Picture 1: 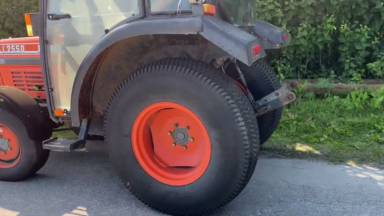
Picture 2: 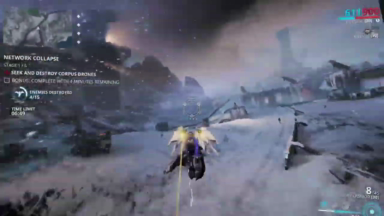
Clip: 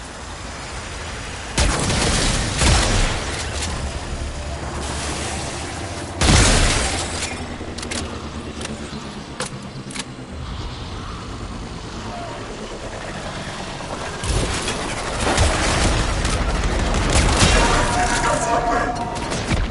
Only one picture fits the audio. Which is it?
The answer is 2